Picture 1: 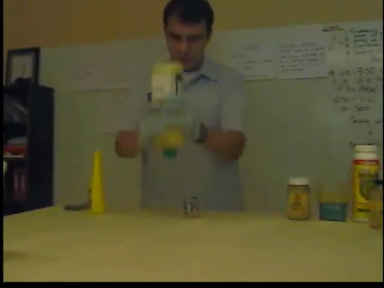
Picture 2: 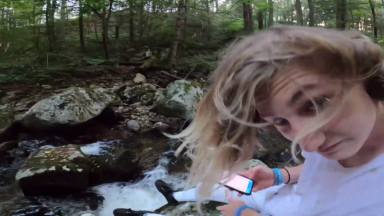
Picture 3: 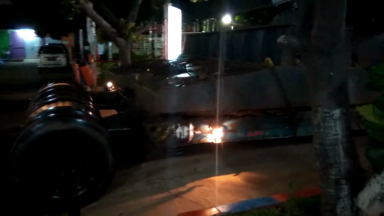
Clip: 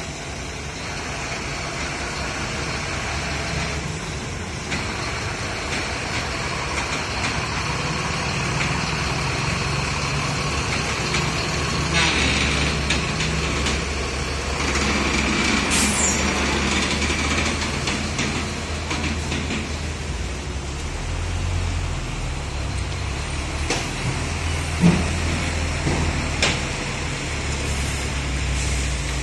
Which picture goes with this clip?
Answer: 3